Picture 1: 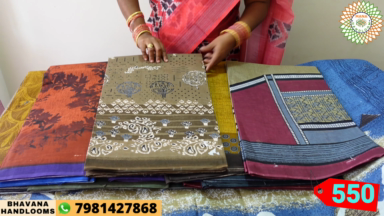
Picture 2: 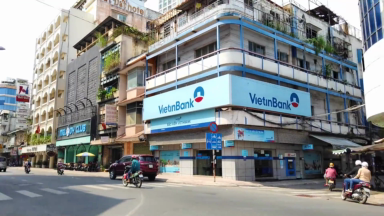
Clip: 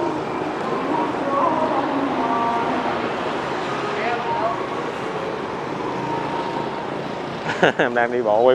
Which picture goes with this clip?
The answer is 2